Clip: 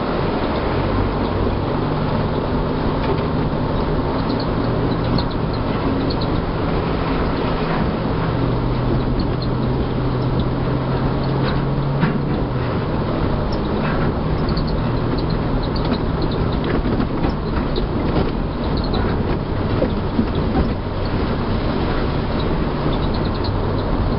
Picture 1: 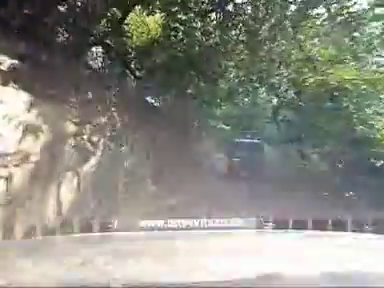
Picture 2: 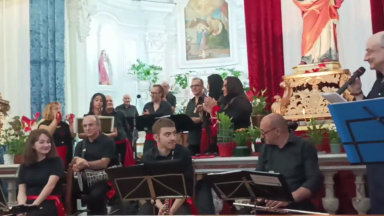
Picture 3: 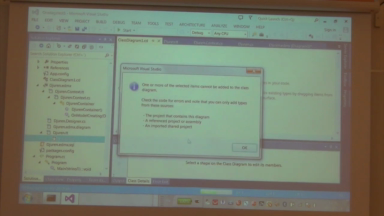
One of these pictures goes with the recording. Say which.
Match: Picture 1